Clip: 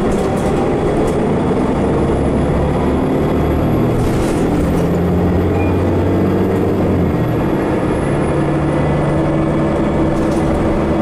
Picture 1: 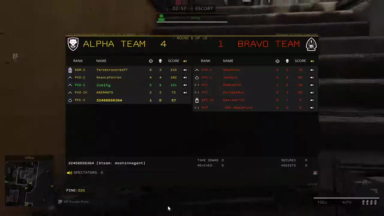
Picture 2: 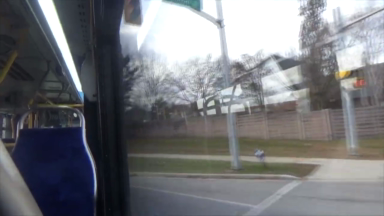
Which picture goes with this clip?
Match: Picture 2